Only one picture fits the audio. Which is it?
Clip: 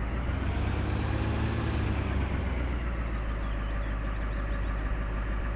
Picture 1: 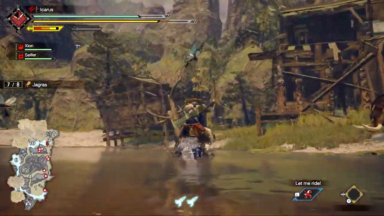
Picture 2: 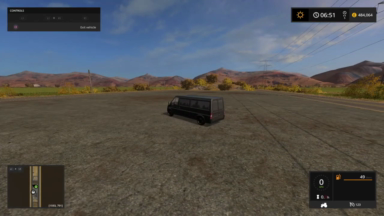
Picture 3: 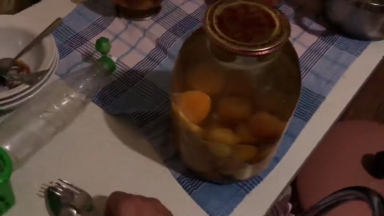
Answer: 2